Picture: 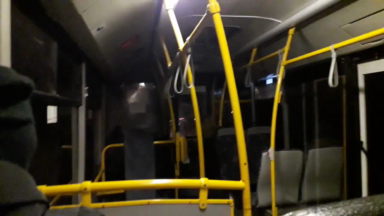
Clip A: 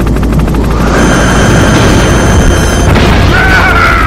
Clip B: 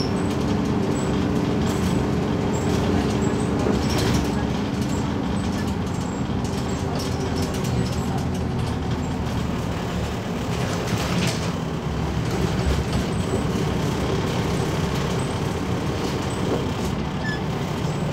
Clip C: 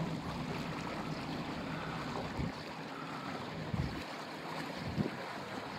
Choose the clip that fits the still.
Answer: B